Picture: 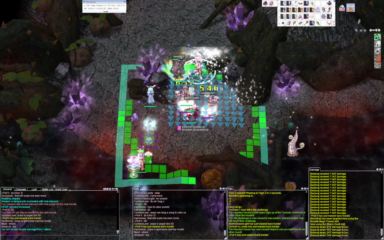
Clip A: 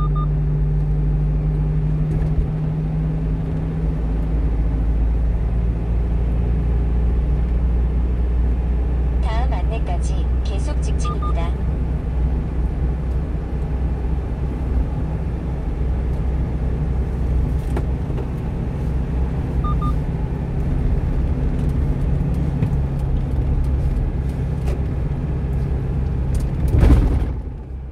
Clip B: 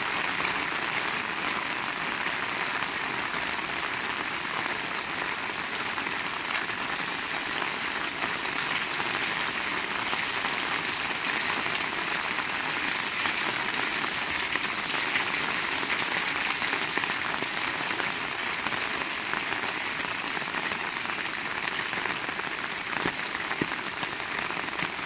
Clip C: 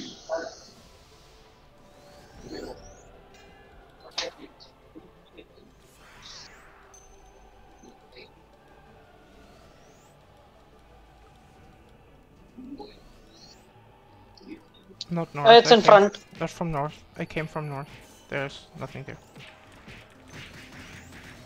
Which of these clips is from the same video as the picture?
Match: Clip C